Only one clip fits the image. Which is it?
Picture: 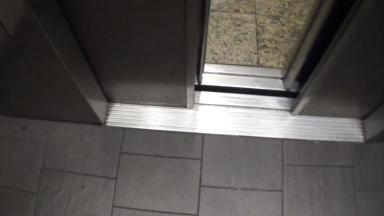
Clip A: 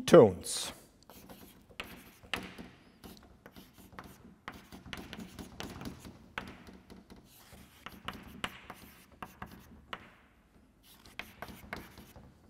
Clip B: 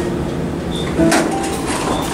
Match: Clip B